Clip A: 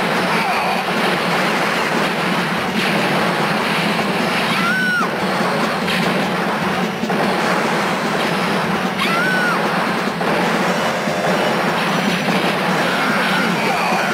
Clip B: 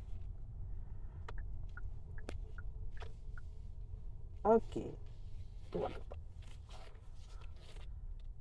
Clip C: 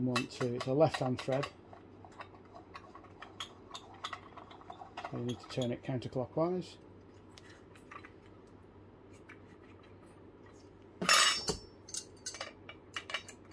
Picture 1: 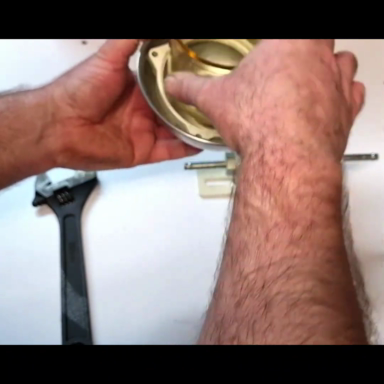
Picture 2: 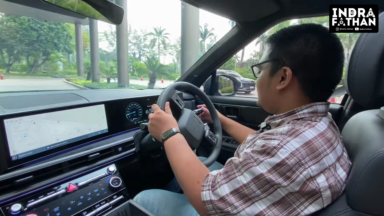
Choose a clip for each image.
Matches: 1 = C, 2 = B